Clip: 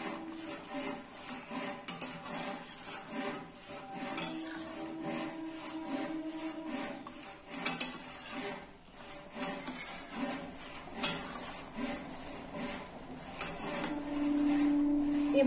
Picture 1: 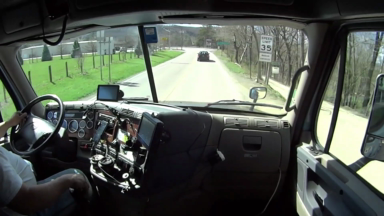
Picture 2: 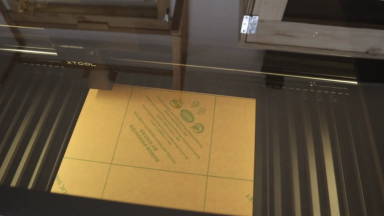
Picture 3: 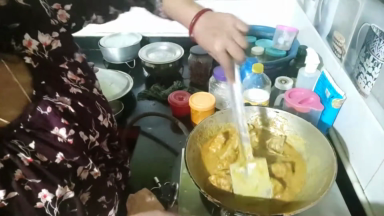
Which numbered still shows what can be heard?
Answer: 3